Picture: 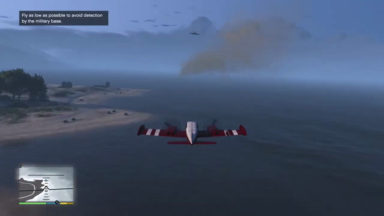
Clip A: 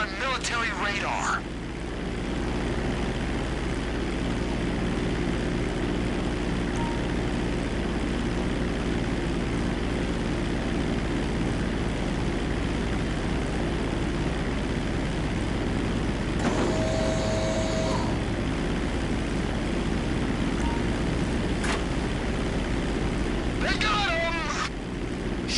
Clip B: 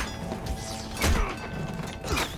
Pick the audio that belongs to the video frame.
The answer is A